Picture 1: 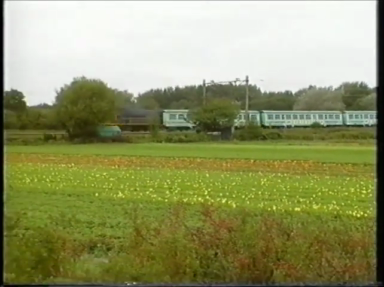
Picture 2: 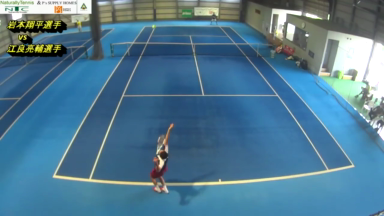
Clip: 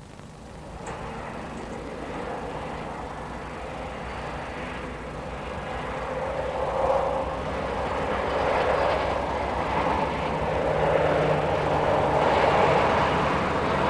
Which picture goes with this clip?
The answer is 1